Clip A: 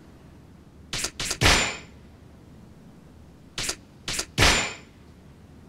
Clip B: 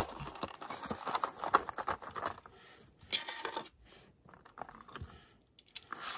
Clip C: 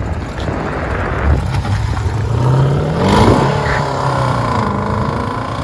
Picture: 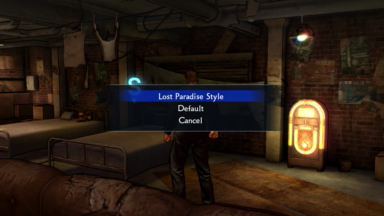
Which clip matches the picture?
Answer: A